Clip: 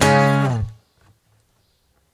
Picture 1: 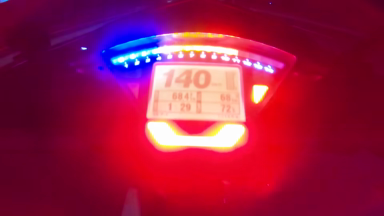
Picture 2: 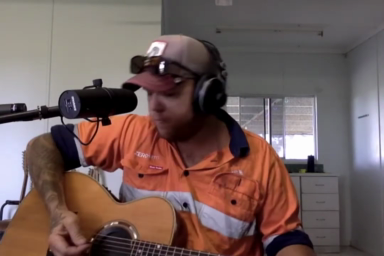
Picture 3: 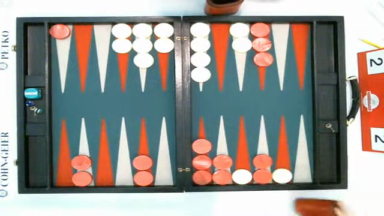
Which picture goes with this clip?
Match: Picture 2